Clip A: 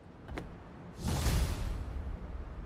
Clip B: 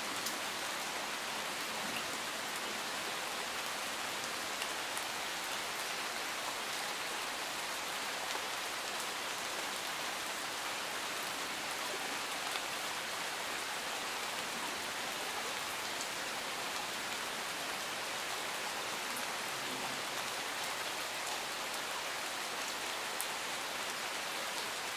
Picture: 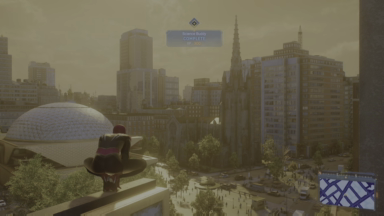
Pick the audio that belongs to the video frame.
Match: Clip A